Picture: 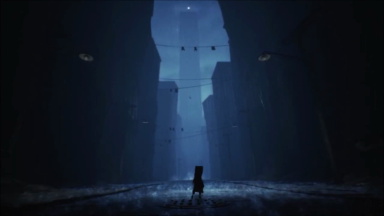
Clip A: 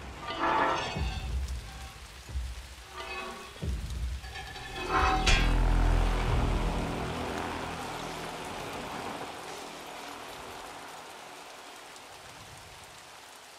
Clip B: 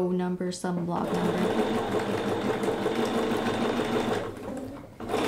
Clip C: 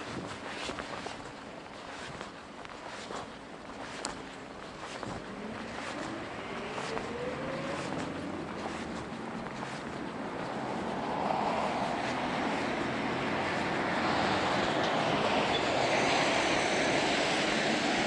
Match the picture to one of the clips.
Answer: A